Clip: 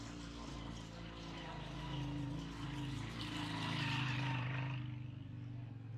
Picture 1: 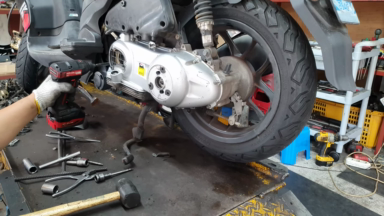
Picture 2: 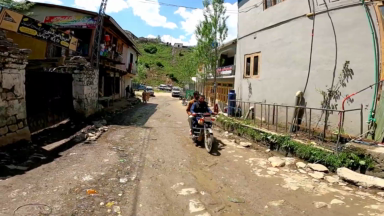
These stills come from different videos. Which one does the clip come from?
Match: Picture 2